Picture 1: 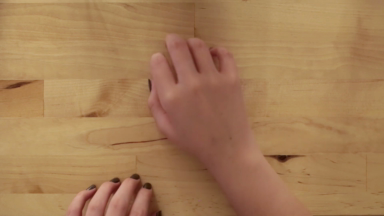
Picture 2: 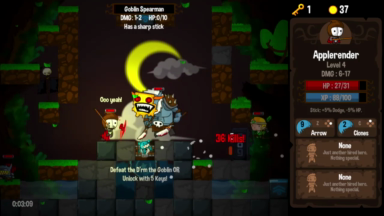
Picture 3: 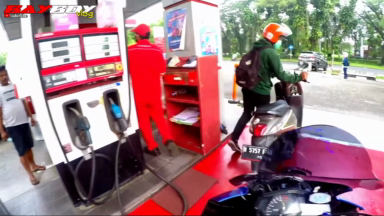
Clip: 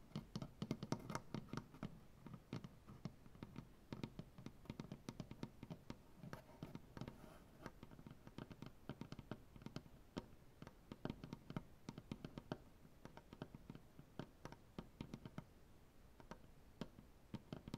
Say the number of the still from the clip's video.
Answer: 1